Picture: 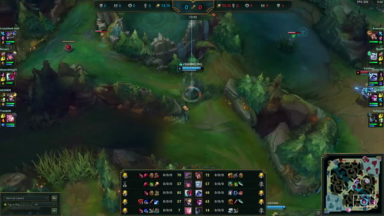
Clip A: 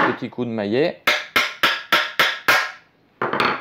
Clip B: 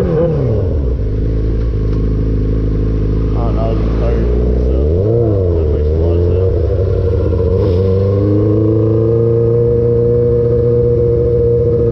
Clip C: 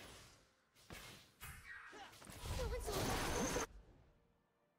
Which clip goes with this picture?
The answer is C